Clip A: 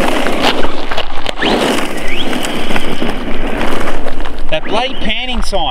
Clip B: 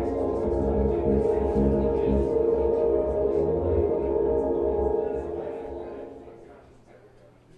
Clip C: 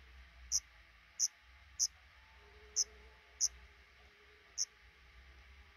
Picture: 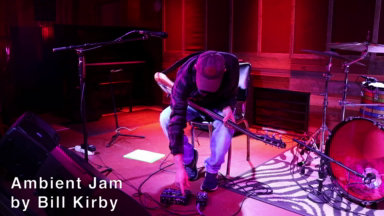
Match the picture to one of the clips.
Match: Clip B